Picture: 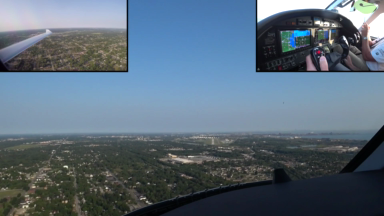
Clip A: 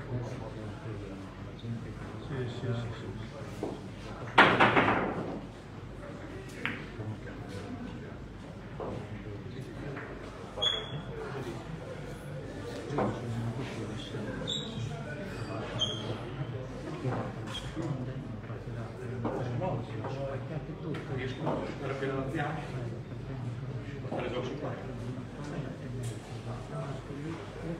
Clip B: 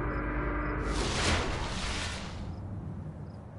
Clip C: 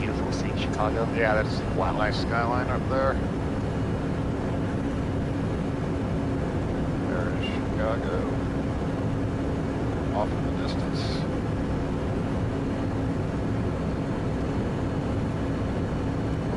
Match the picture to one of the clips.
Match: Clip C